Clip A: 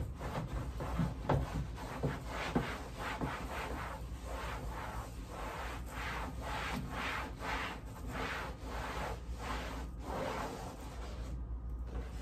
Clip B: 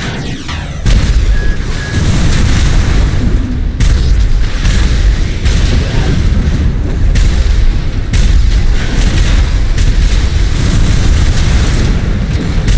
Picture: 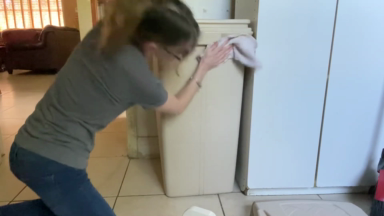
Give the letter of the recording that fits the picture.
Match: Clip A